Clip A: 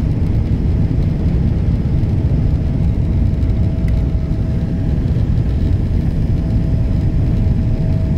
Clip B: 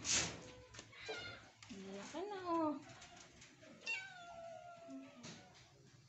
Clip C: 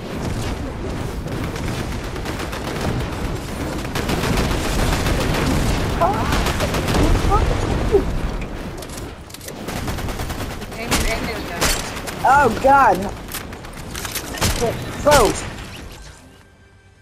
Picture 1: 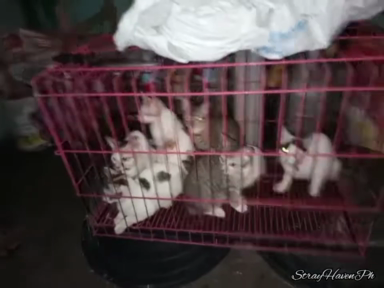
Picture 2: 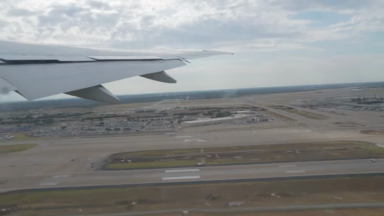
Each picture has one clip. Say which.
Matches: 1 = B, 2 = A